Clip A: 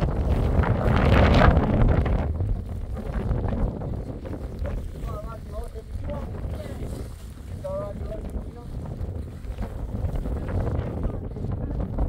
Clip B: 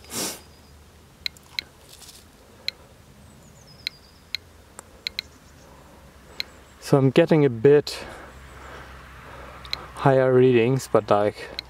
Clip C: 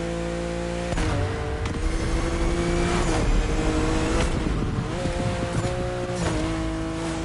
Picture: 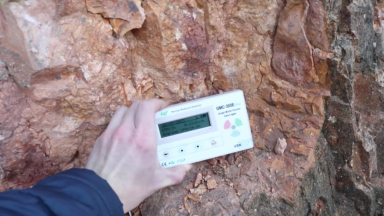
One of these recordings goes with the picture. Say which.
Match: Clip B